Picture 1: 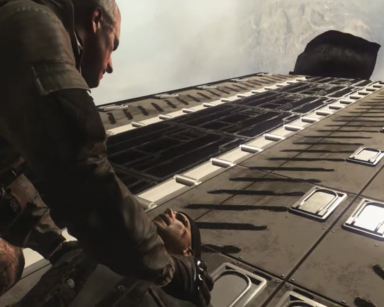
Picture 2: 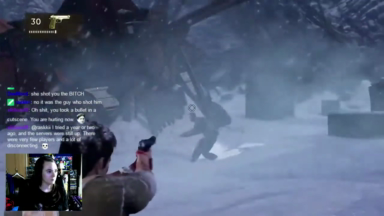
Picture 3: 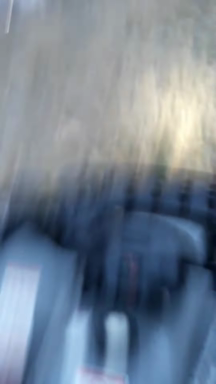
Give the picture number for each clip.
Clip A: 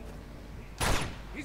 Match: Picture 2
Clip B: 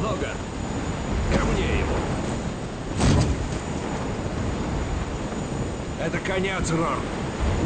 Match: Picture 1